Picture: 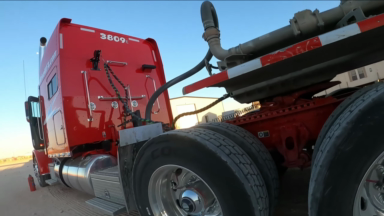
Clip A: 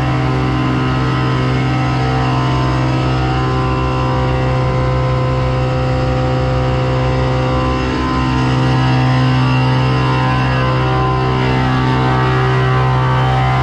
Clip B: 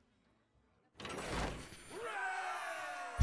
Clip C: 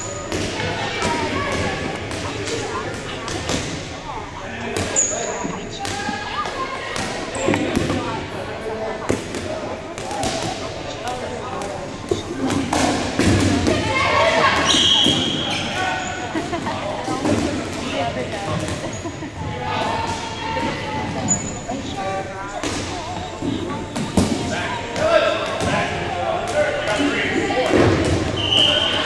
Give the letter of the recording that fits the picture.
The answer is A